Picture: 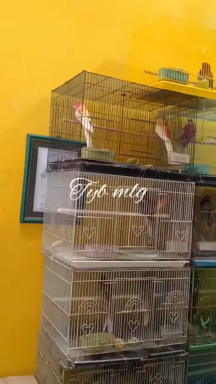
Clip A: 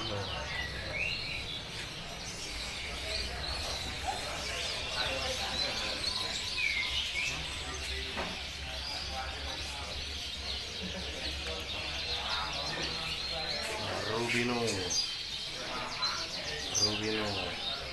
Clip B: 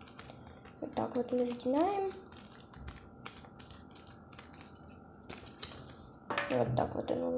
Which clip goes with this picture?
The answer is A